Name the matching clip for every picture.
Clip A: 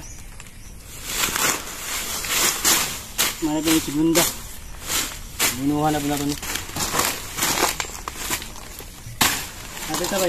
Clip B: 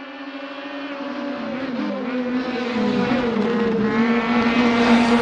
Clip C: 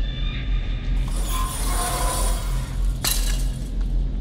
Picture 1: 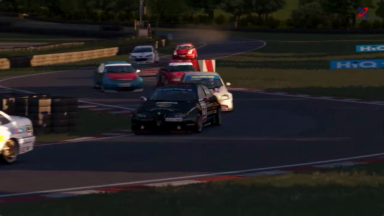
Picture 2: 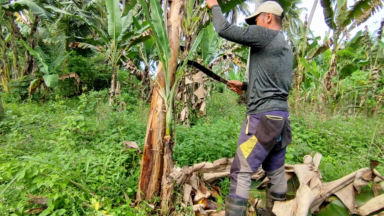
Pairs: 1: B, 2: A